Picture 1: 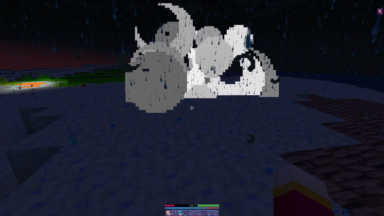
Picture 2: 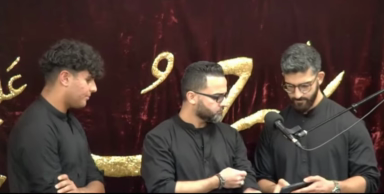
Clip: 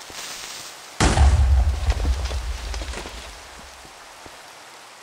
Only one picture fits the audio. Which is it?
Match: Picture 1